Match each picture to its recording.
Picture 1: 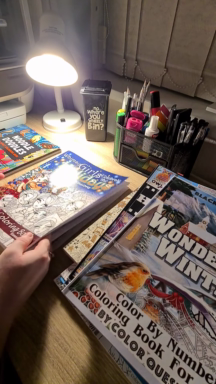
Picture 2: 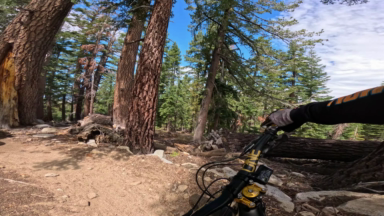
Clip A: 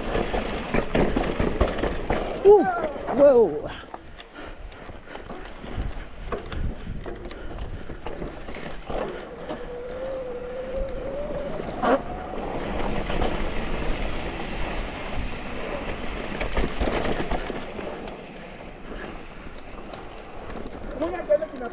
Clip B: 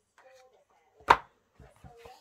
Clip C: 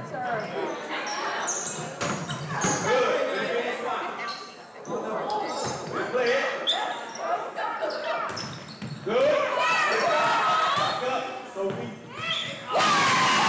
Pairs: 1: B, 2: A